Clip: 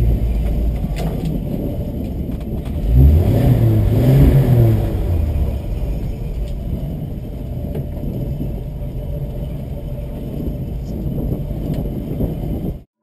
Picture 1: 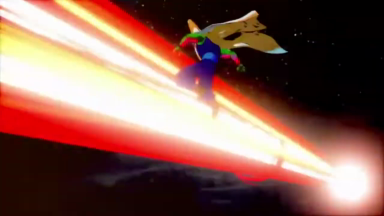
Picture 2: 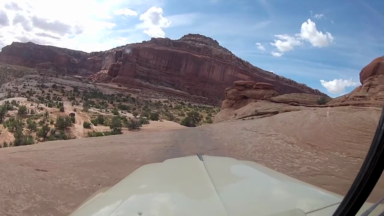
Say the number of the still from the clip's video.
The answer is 2